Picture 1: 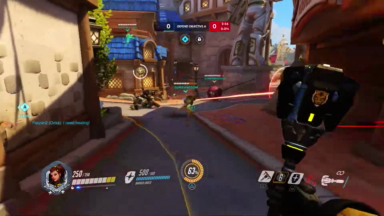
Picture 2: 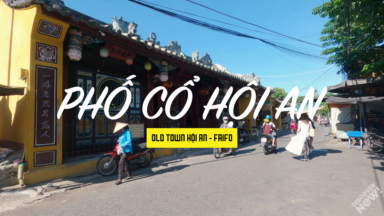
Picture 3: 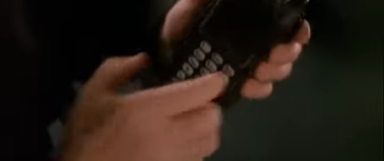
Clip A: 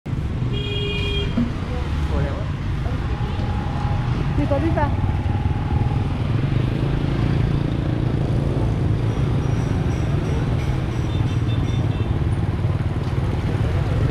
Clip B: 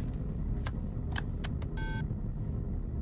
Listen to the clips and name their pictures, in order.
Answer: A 2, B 3